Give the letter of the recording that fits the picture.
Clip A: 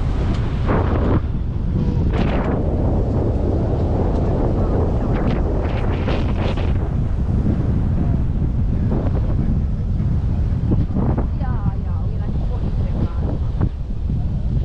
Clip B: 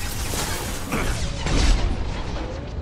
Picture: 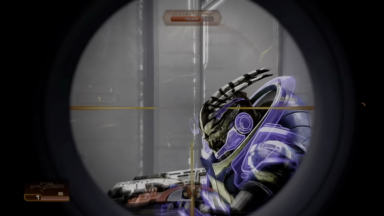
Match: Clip B